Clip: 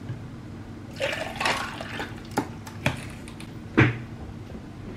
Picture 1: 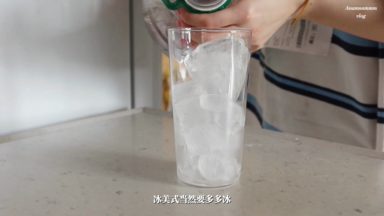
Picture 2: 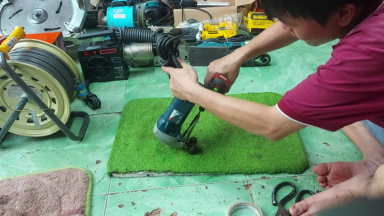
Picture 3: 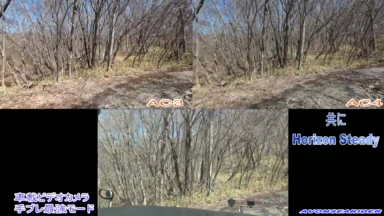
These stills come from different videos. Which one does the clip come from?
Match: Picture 1